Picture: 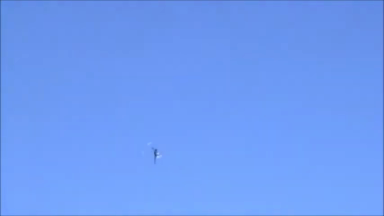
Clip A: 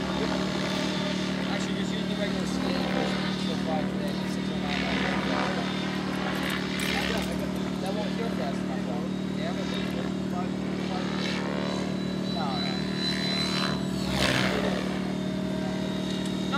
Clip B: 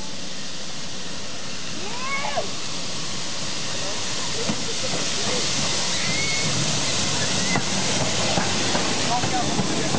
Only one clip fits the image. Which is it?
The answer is A